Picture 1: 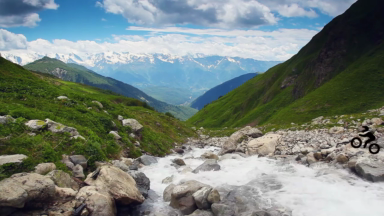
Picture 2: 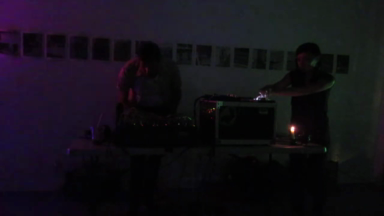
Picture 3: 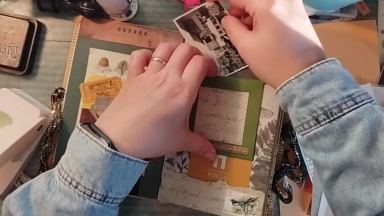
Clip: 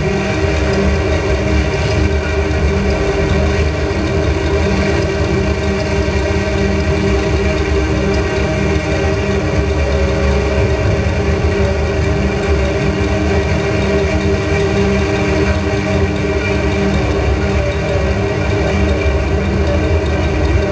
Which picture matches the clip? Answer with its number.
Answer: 2